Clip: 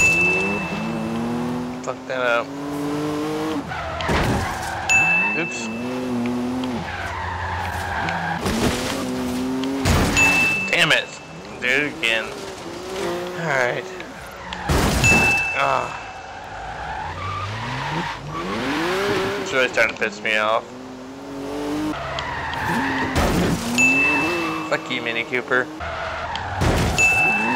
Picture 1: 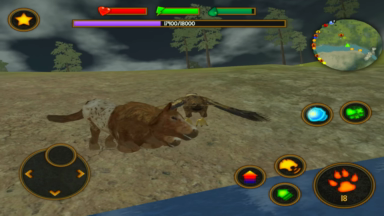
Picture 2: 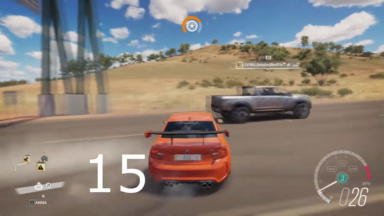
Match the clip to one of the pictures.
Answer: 2